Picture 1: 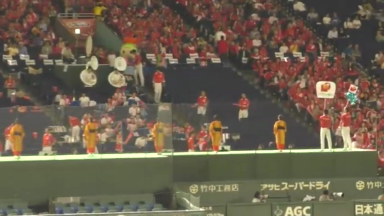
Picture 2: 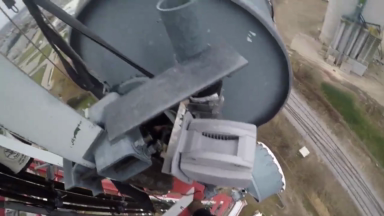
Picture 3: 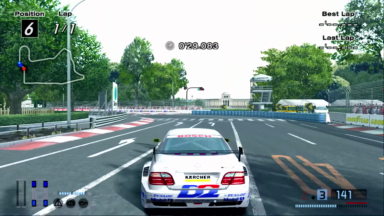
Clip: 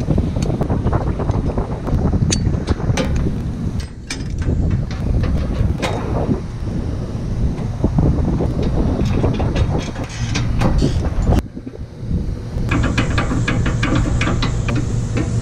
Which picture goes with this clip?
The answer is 2